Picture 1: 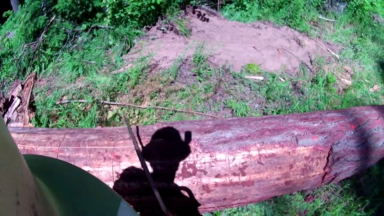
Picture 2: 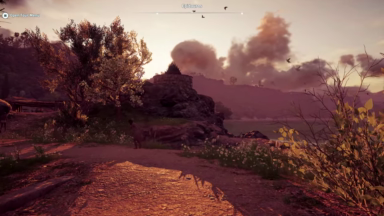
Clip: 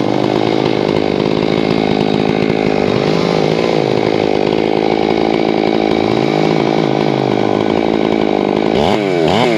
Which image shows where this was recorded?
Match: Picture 1